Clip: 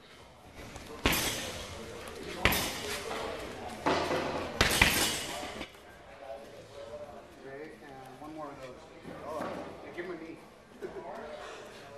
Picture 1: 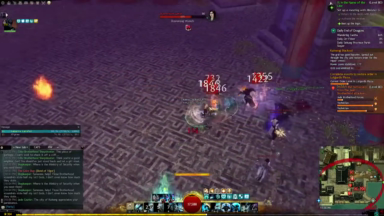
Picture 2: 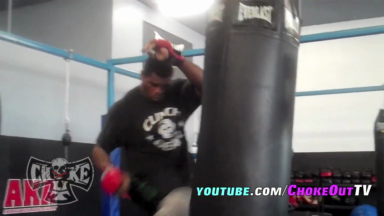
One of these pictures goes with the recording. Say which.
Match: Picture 2